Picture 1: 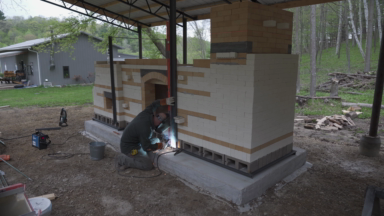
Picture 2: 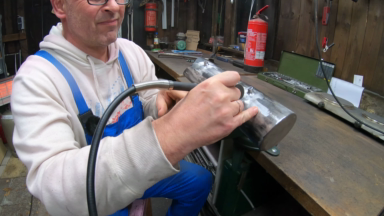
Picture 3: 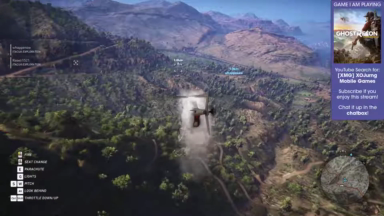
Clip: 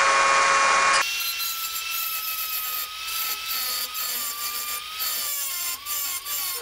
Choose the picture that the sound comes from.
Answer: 2